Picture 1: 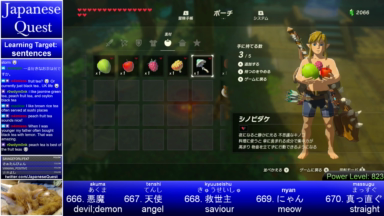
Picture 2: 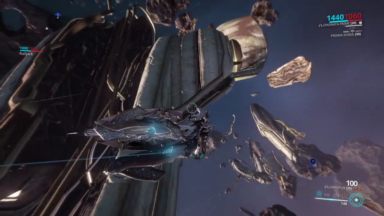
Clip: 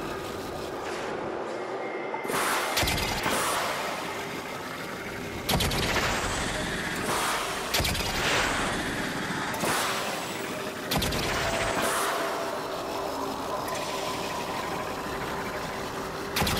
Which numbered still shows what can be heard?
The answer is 2